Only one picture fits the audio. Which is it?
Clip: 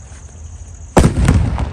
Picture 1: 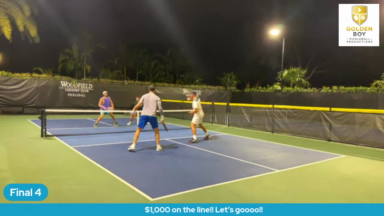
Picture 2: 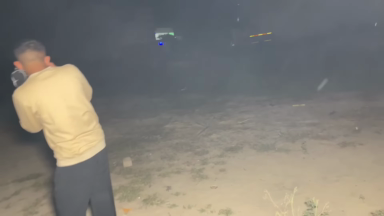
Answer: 2